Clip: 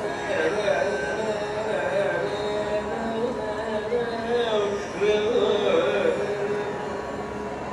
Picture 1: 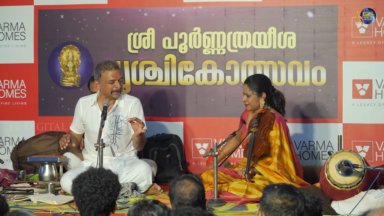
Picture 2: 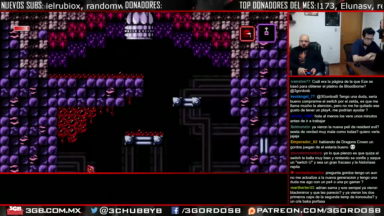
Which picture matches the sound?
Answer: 1